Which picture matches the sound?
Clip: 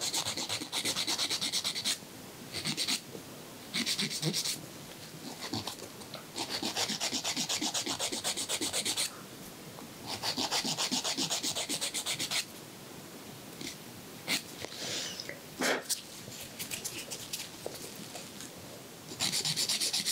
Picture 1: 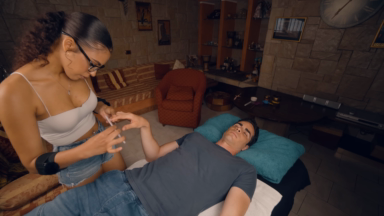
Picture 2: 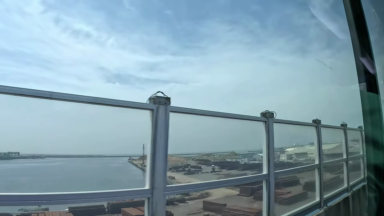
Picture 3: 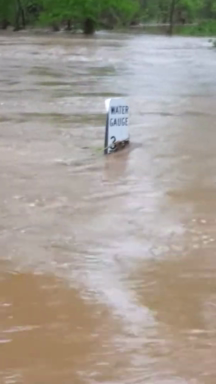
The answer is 1